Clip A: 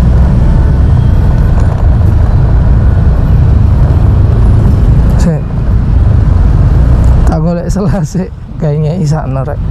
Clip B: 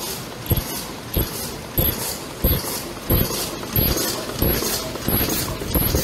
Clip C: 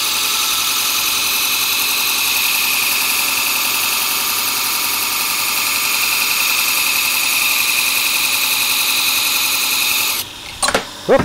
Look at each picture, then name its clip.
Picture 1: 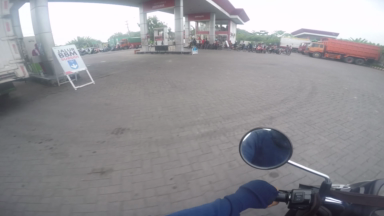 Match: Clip A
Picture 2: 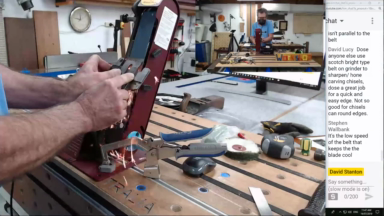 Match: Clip C